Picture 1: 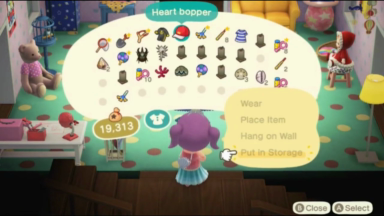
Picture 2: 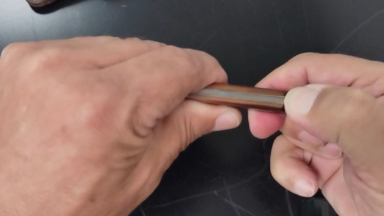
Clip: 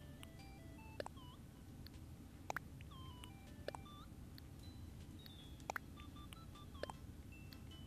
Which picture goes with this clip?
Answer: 1